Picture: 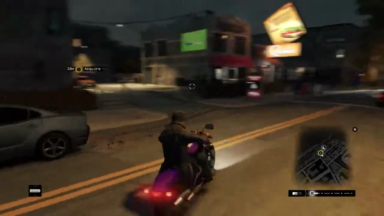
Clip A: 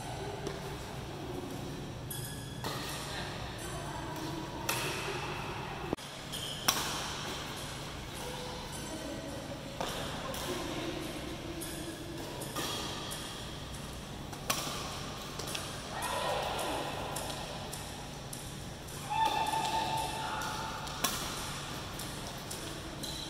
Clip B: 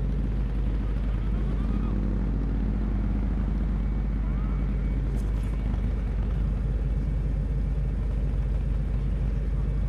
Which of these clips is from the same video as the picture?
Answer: B